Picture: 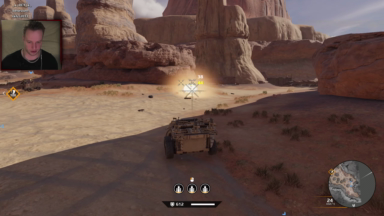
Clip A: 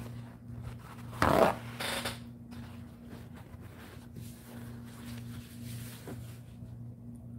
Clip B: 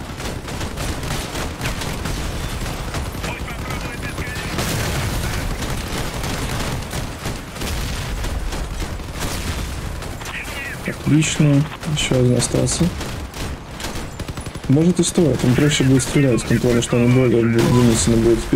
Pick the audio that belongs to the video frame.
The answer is B